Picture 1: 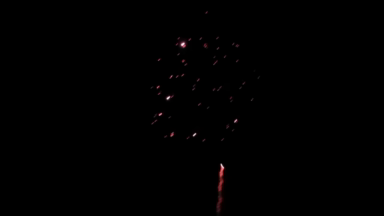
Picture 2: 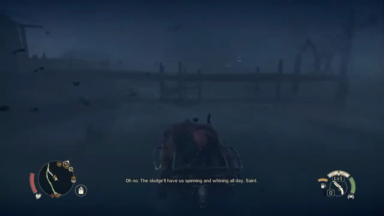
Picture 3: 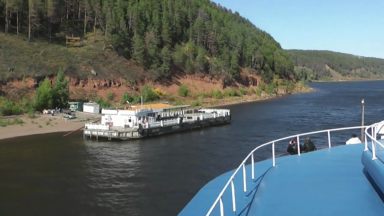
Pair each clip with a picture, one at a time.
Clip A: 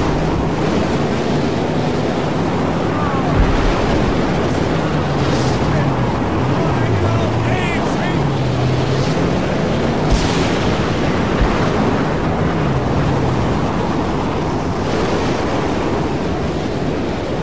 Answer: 2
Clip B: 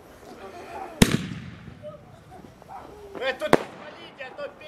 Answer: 1